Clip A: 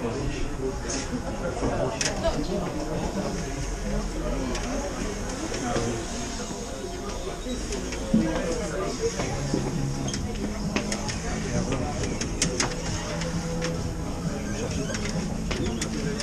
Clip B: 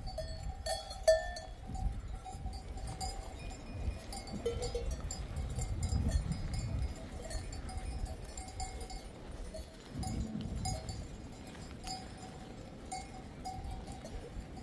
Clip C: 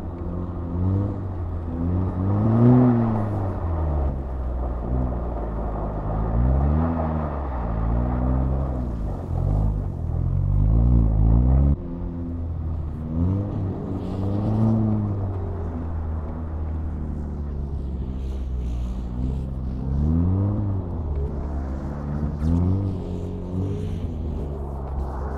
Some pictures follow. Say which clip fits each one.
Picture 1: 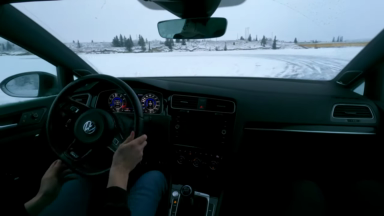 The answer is C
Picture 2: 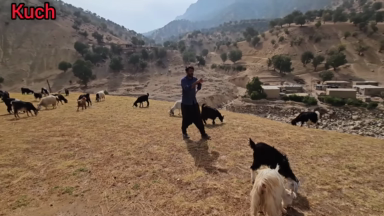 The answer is B